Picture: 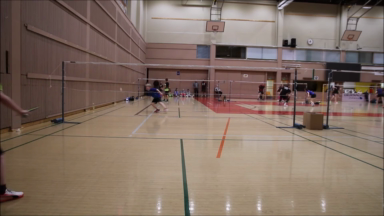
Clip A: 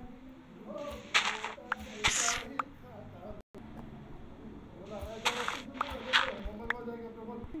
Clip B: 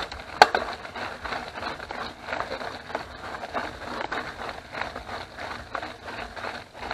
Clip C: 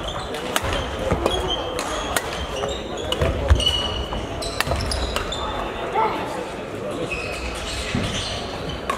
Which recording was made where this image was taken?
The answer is C